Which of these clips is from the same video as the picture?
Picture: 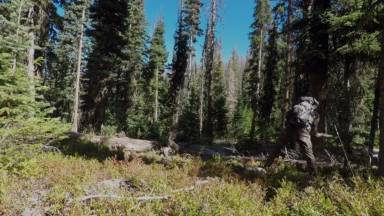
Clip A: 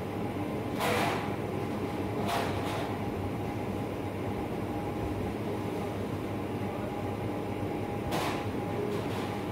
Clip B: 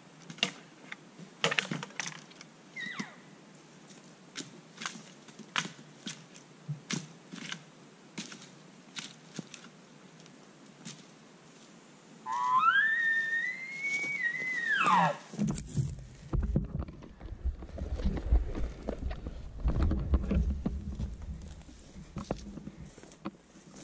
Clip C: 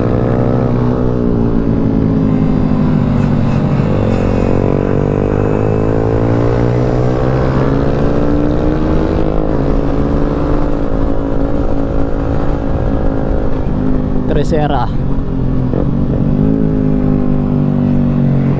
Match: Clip B